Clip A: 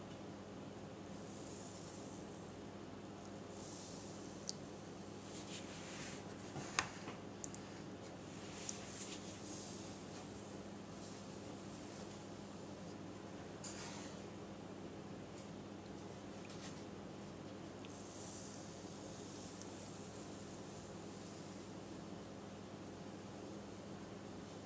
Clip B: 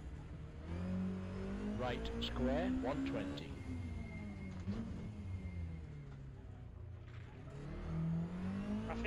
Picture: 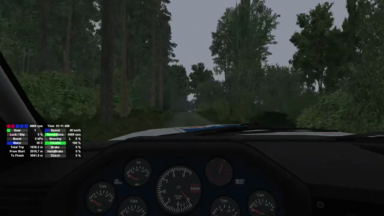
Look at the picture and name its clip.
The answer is B